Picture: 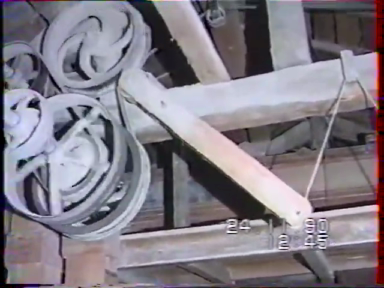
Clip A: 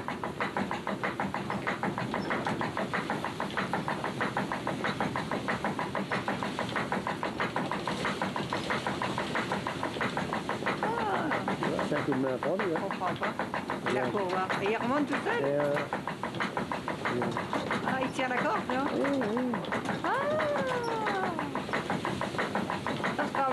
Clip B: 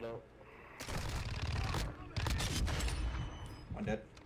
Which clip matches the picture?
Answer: A